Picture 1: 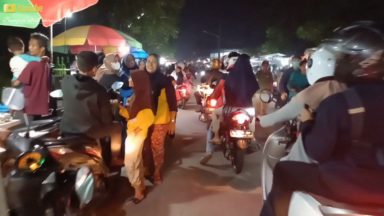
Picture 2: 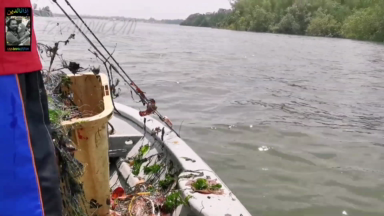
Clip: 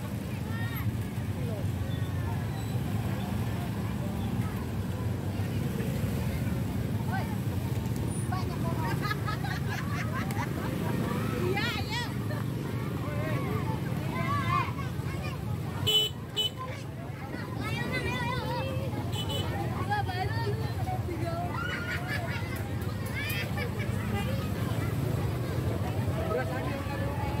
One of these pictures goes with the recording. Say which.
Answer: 1